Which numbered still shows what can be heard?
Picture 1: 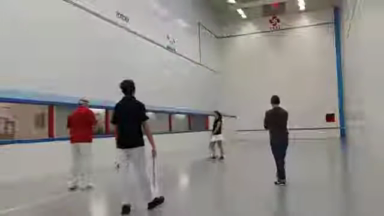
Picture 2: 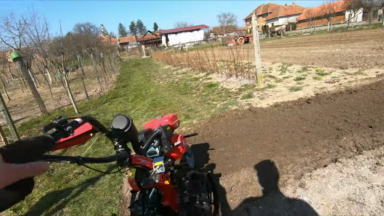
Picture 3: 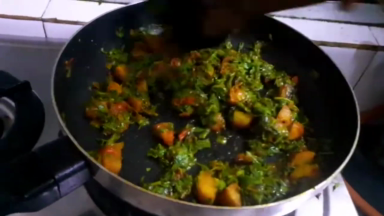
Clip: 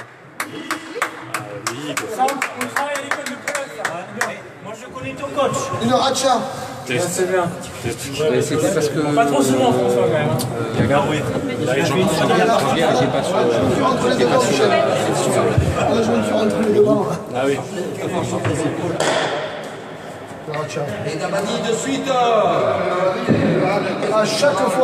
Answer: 1